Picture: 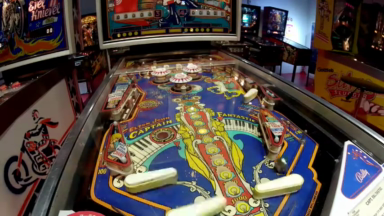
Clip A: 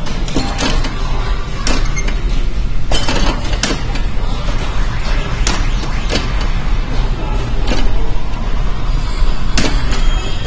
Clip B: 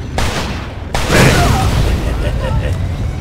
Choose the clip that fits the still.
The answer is A